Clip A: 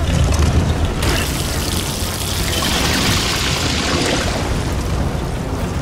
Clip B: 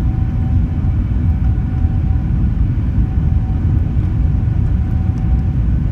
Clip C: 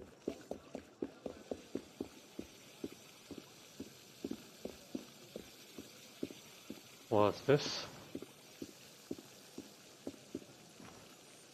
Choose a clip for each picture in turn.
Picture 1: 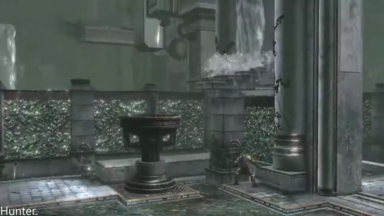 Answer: A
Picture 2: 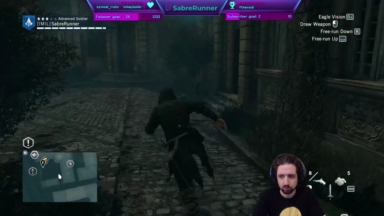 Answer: C